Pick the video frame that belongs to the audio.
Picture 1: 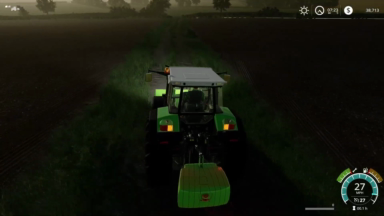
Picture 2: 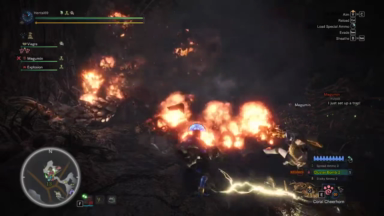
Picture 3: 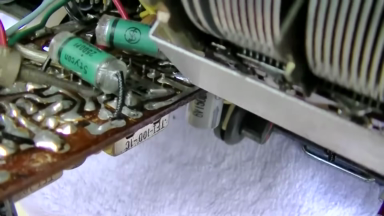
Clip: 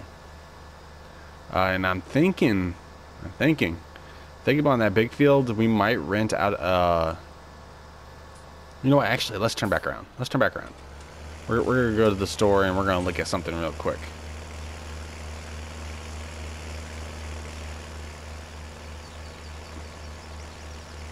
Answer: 1